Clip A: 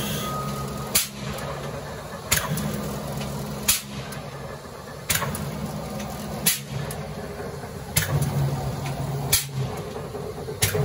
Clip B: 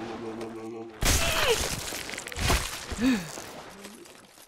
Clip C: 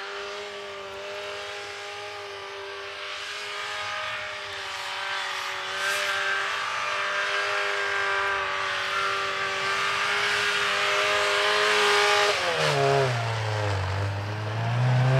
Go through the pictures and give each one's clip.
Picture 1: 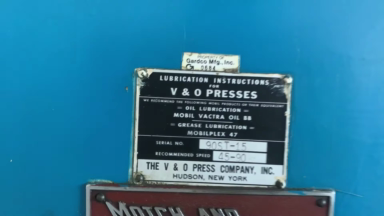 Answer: A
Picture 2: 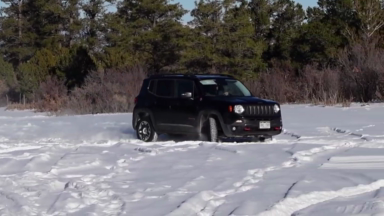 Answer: C